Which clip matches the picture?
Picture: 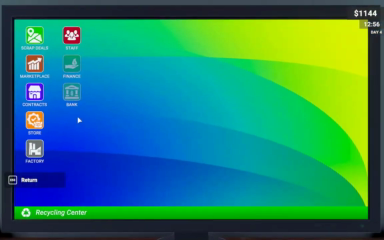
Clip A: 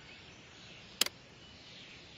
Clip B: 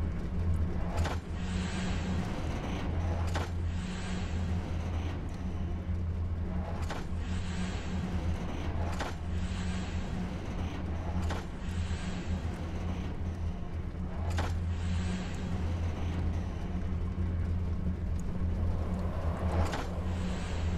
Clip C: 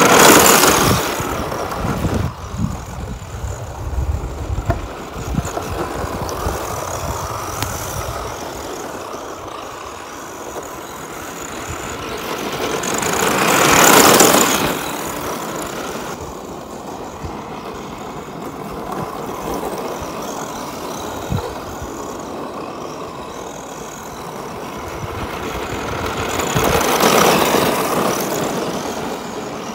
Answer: A